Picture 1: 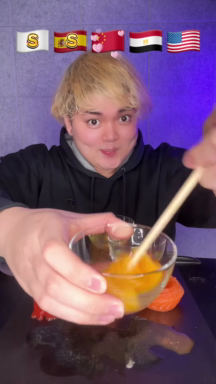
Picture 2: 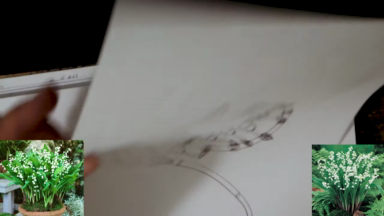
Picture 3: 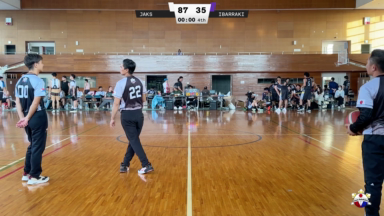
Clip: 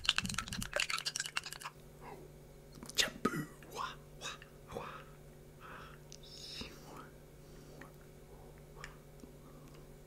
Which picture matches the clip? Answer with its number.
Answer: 1